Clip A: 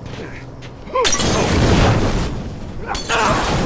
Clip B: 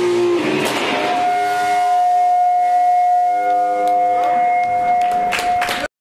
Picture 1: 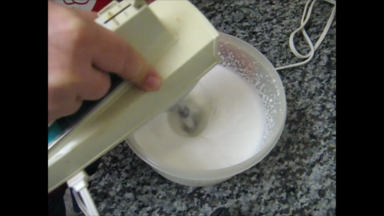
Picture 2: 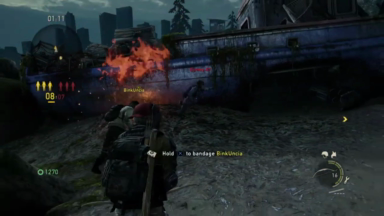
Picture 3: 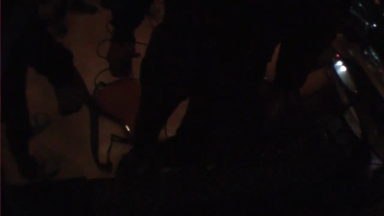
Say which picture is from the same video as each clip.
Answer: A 2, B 3